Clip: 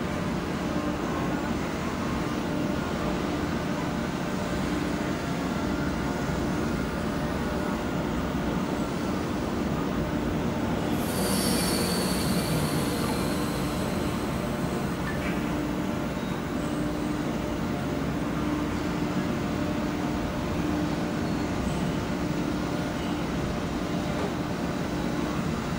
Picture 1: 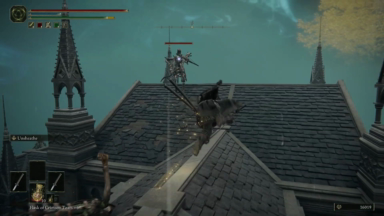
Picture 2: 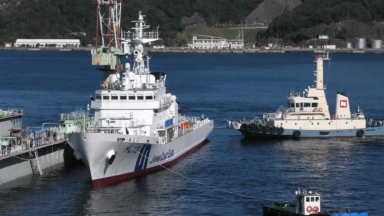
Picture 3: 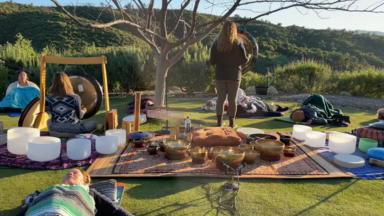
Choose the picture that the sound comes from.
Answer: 2